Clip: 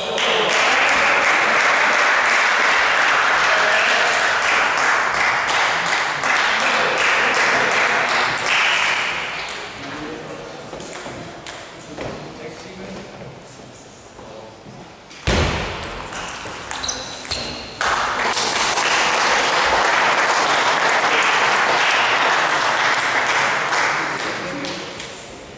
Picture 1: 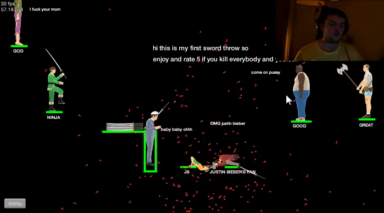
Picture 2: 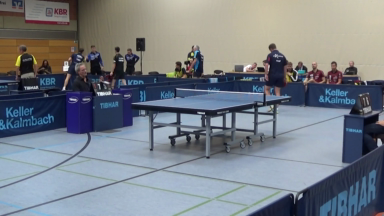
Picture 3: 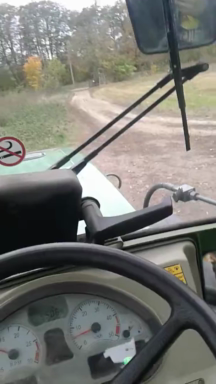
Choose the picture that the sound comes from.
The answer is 2